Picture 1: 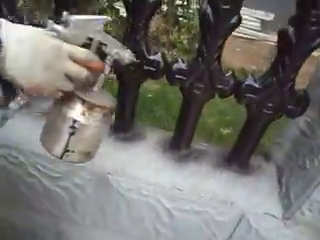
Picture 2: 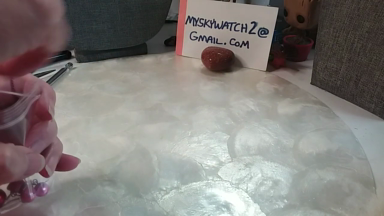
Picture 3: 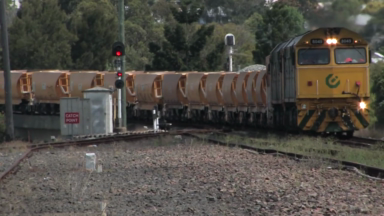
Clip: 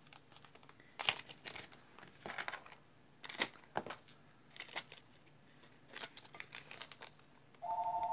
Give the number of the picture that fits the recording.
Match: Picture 2